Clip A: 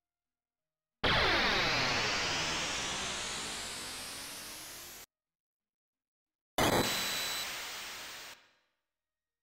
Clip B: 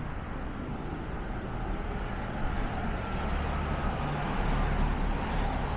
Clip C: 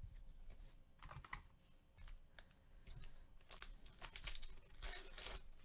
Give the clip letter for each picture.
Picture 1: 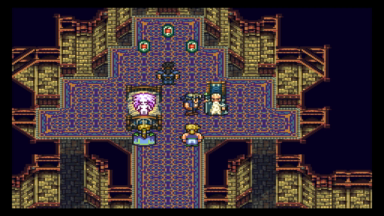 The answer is A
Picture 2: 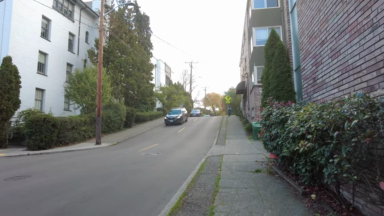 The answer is B